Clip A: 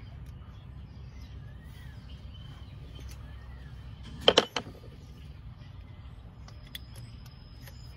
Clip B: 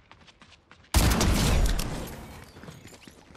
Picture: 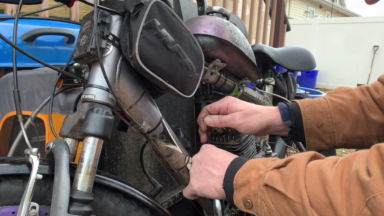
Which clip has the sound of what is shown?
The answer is A